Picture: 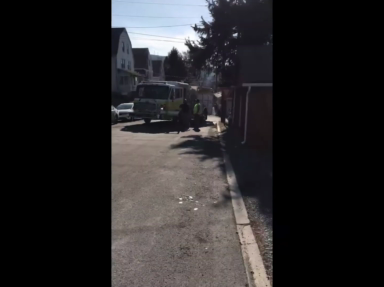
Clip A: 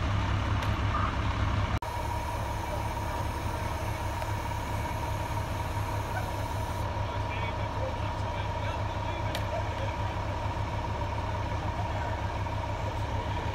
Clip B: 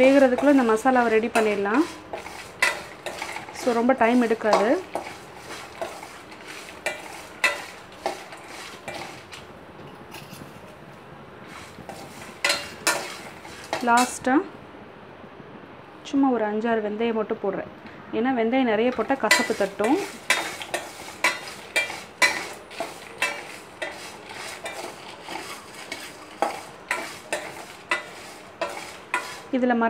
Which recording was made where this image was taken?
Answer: A